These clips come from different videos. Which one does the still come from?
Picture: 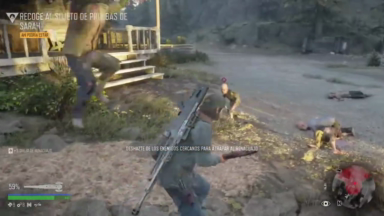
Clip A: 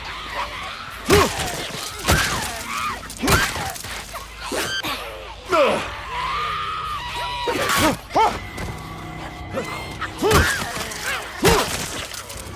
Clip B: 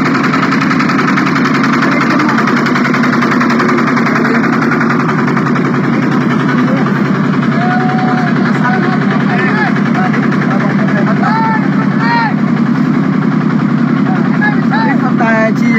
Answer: A